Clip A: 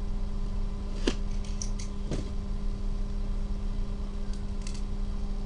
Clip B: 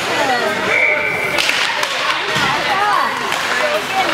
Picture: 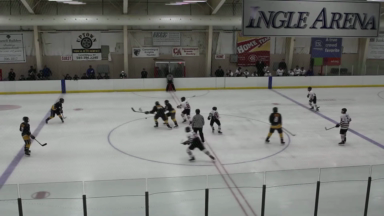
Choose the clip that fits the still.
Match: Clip B